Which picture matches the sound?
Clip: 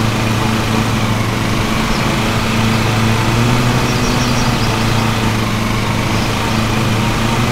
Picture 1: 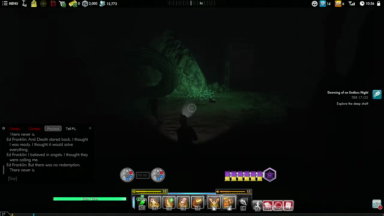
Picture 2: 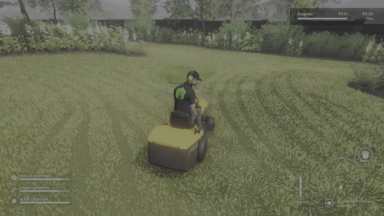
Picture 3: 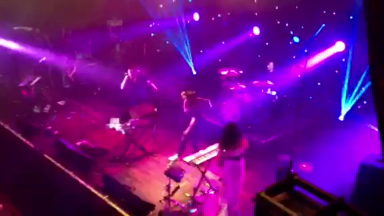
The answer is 2